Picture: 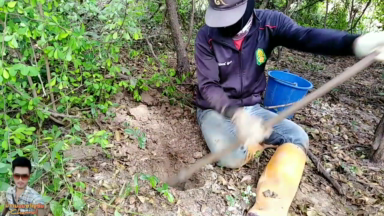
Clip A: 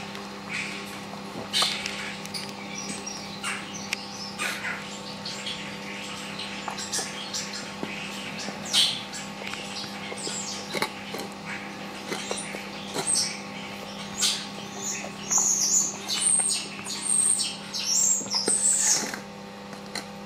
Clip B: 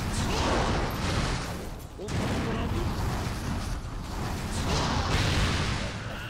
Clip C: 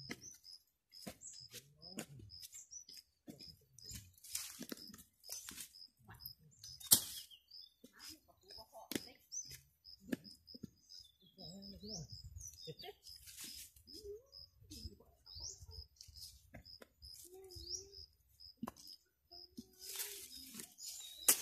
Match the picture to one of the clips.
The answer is C